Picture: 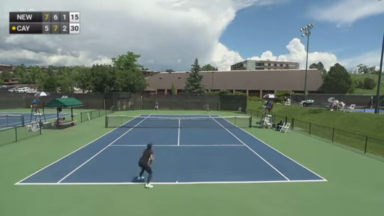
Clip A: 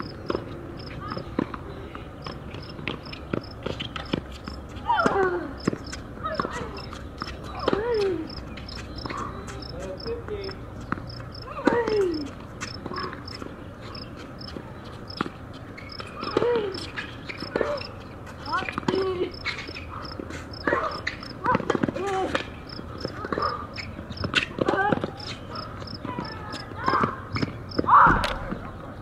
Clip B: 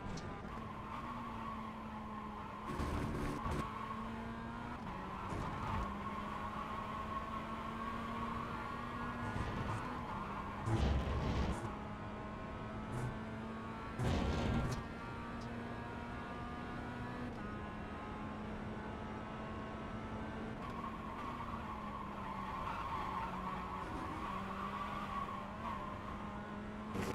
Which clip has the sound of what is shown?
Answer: A